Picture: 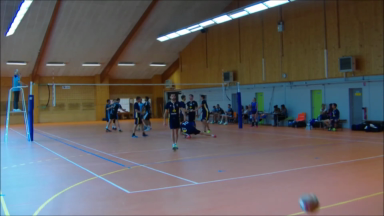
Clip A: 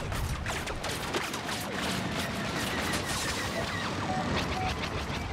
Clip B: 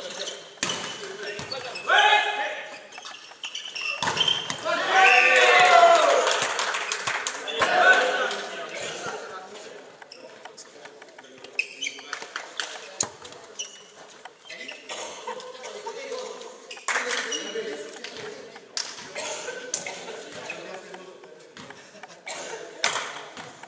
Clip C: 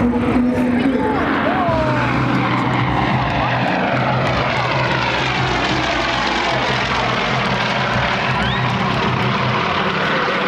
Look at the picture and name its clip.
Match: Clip B